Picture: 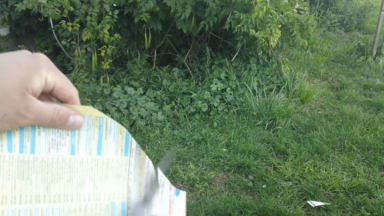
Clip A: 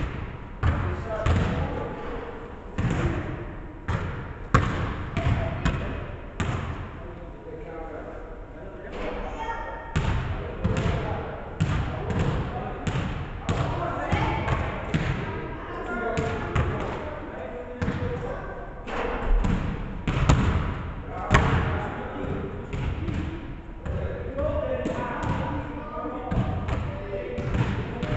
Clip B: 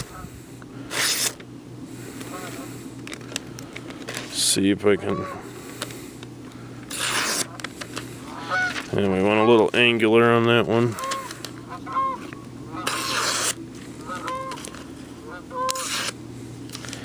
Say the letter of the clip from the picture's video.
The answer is B